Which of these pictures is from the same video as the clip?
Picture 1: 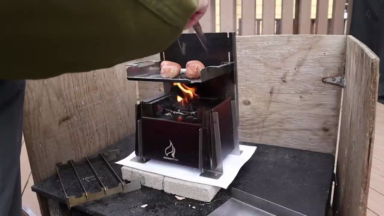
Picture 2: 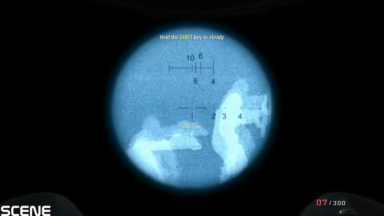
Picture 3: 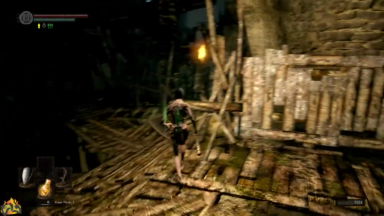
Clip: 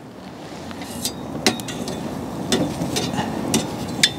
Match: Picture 1